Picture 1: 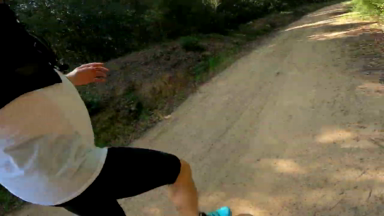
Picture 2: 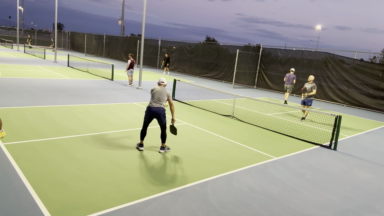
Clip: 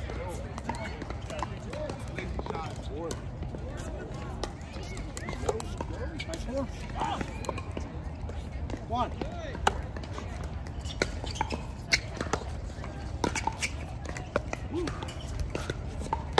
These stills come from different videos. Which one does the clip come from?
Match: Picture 2